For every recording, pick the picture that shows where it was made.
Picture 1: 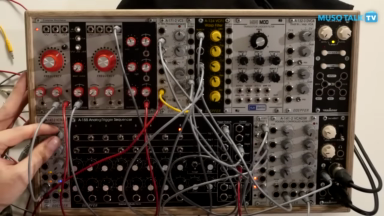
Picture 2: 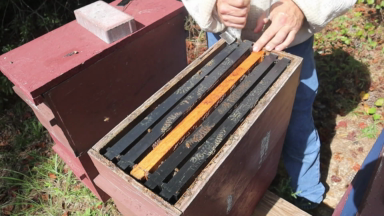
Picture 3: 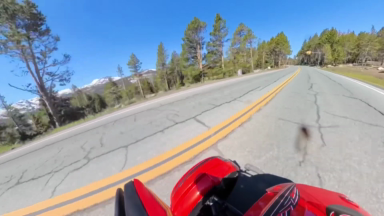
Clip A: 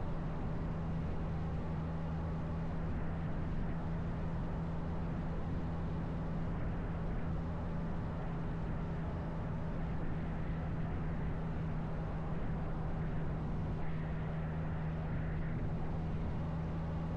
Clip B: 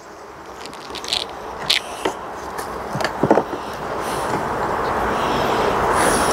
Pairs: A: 3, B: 2